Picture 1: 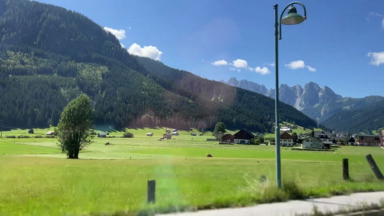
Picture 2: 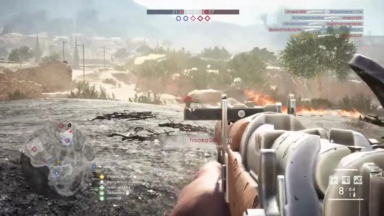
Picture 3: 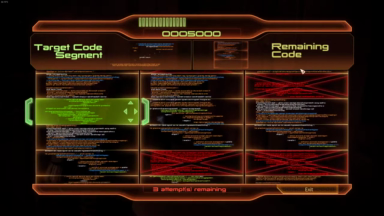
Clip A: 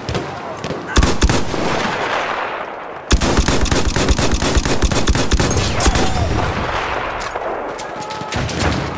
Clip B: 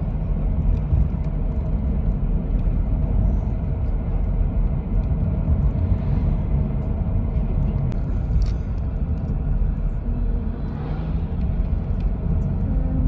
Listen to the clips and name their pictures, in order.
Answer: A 2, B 1